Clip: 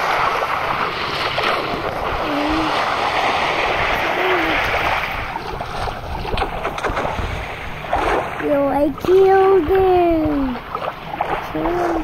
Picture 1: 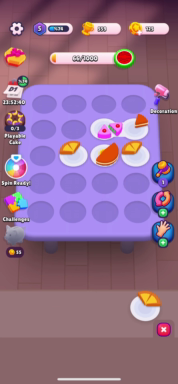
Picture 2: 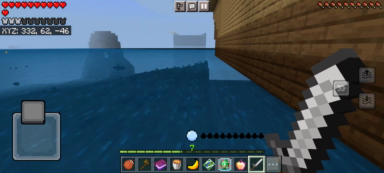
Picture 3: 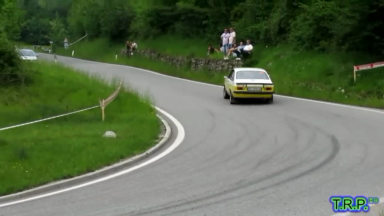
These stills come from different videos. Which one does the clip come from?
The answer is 2